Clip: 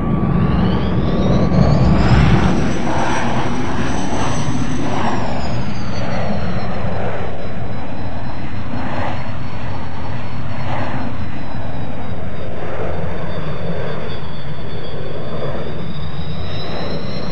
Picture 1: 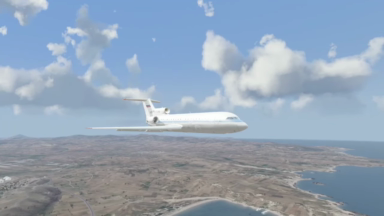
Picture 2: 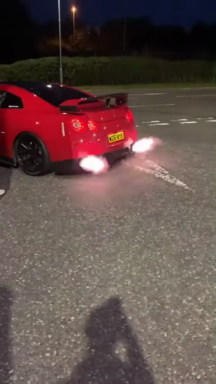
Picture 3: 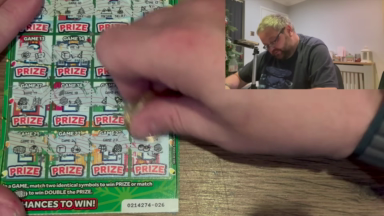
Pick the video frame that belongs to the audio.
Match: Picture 1